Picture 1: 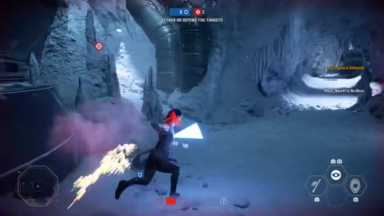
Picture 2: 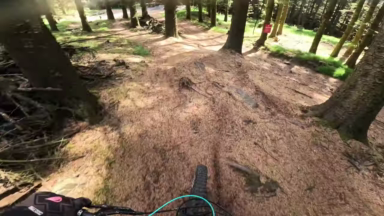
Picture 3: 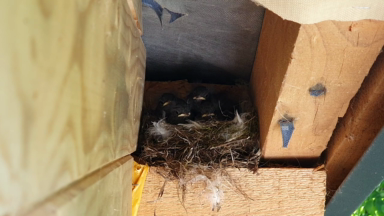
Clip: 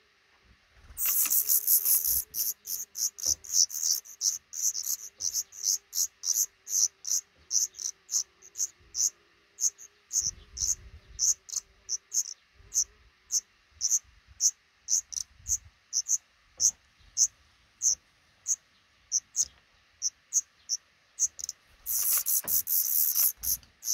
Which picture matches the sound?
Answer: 3